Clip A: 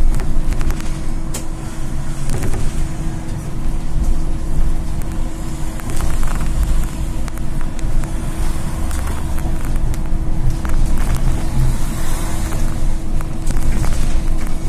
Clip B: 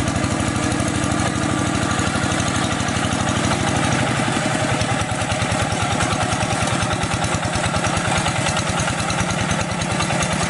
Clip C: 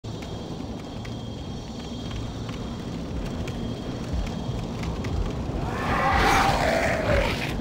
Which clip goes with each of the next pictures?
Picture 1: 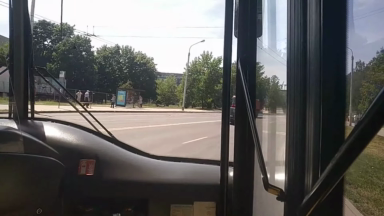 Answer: A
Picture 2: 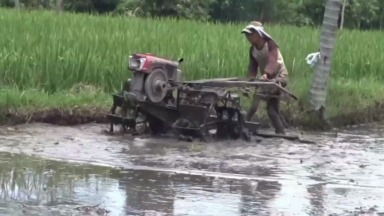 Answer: B